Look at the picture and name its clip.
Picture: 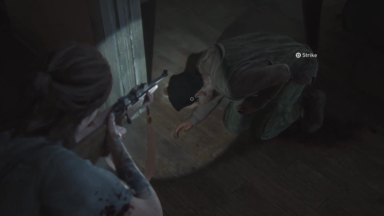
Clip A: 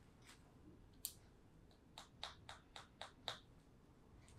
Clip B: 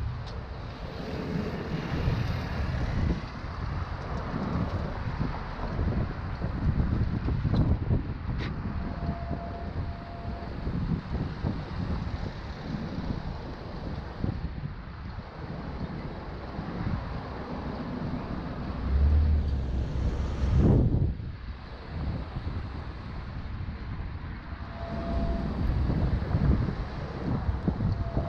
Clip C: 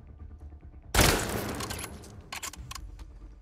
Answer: C